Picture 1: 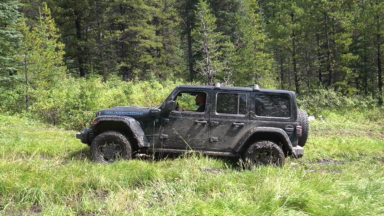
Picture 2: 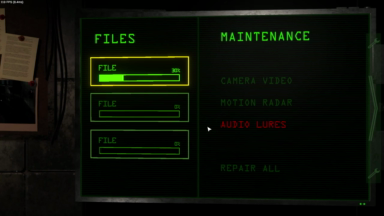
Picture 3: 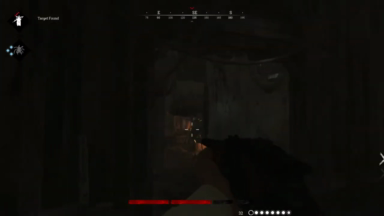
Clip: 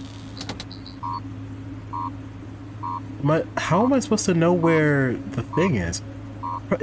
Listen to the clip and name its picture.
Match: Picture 2